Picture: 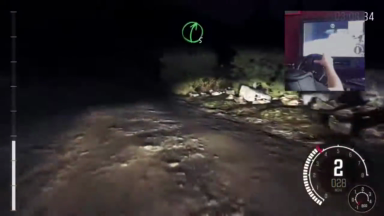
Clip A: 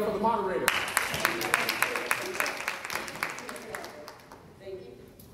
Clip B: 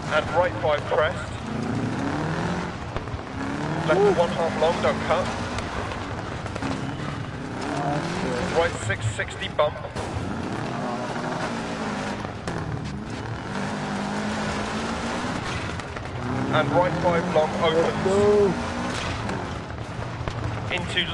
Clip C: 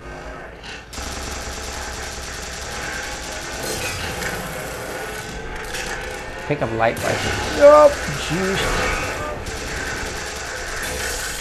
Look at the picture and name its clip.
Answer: B